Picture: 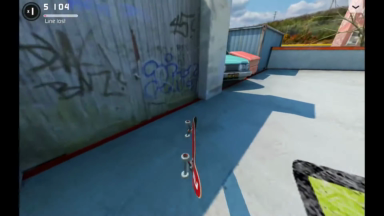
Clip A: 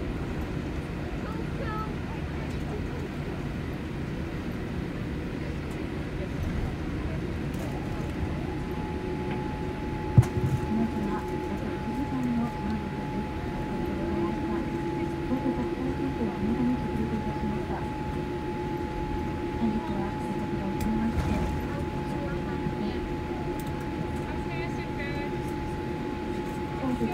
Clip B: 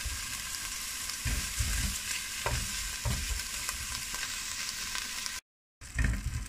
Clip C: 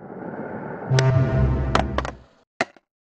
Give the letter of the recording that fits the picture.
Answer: C